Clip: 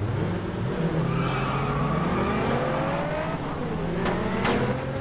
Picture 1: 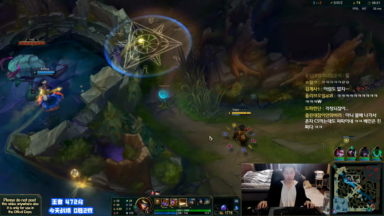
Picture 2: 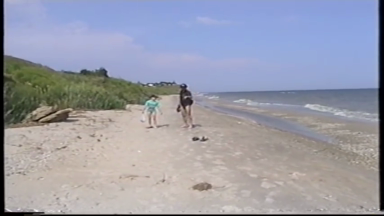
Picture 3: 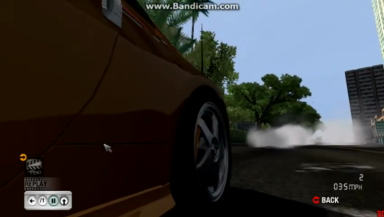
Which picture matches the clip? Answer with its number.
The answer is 3